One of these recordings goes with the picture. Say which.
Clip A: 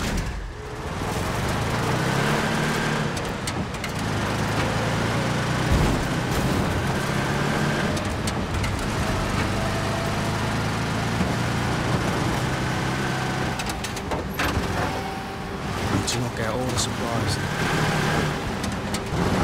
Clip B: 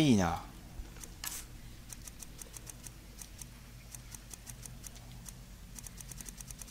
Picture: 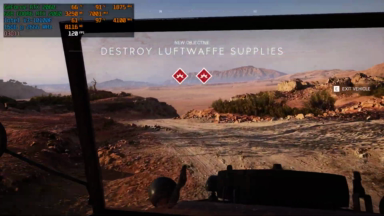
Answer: A